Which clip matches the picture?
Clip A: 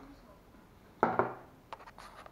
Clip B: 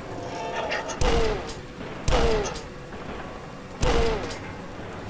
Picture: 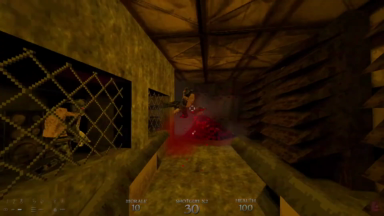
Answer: B